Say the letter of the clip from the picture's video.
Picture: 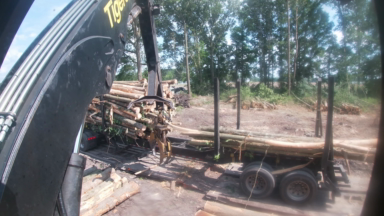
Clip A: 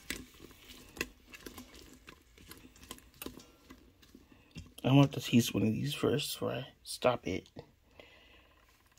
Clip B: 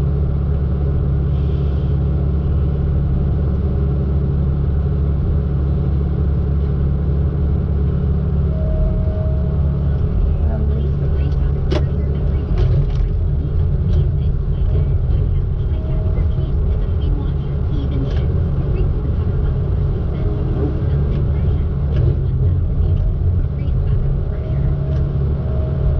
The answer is B